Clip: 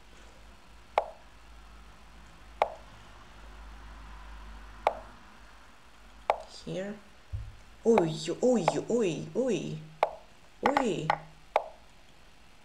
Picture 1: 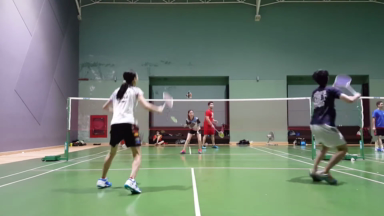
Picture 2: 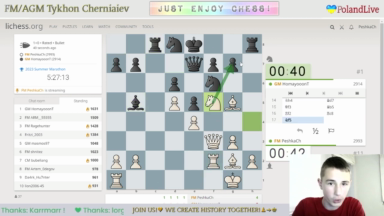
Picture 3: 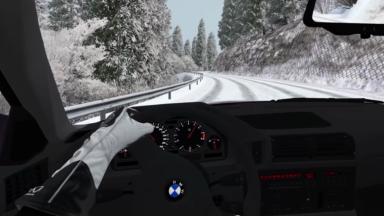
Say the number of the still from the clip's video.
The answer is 2